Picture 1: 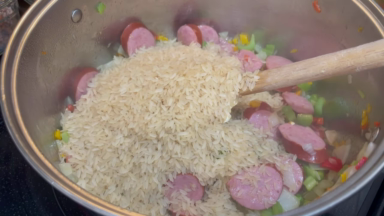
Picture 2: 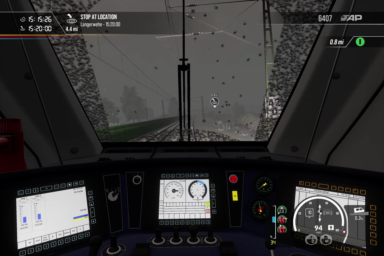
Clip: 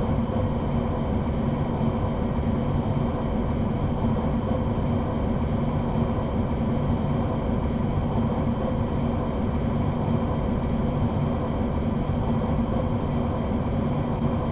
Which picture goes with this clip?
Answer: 2